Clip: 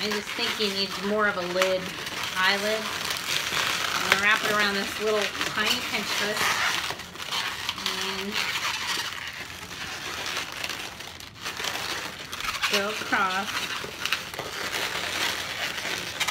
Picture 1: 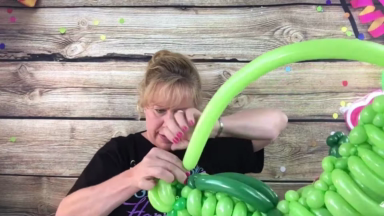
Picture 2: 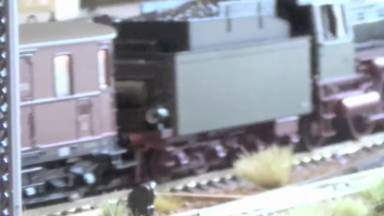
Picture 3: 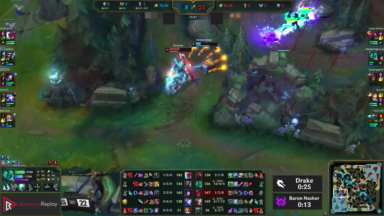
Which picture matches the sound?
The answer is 1